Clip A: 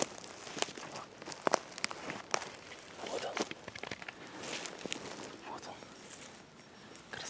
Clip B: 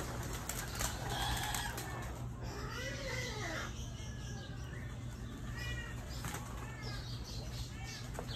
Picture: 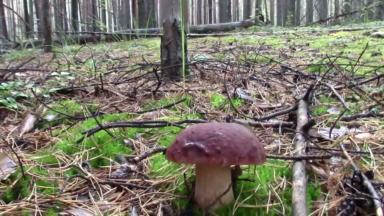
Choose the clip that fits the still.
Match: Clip A